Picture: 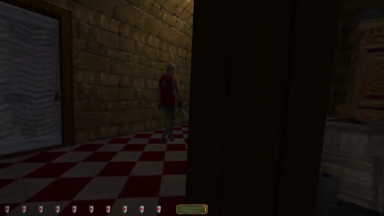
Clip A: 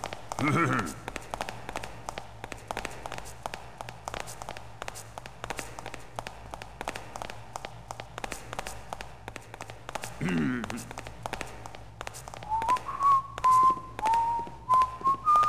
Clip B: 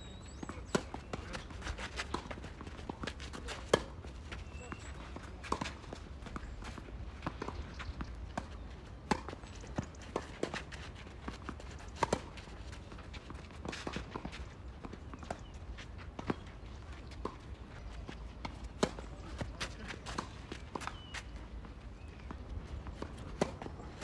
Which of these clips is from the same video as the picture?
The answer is A